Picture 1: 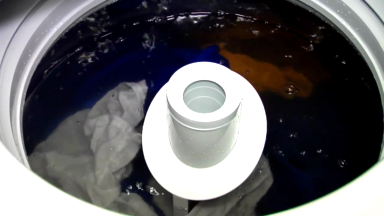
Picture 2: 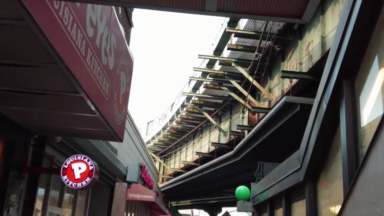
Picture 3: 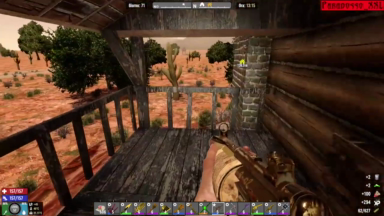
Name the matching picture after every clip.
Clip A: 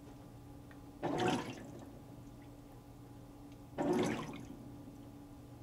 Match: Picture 1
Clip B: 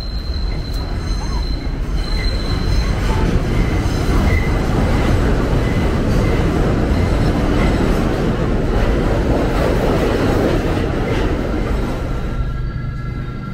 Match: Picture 2